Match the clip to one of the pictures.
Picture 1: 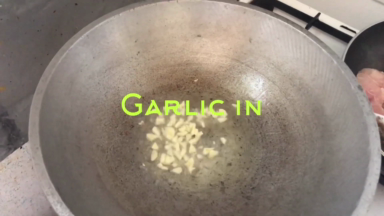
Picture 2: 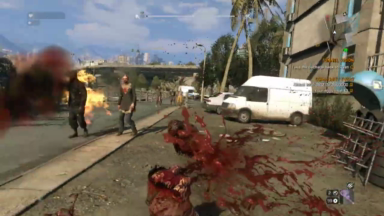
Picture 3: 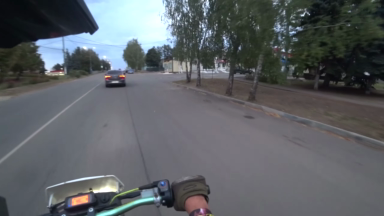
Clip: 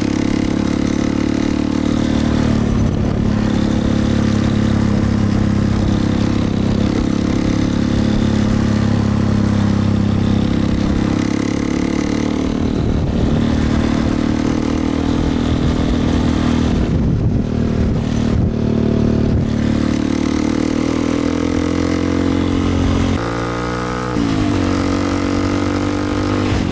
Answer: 3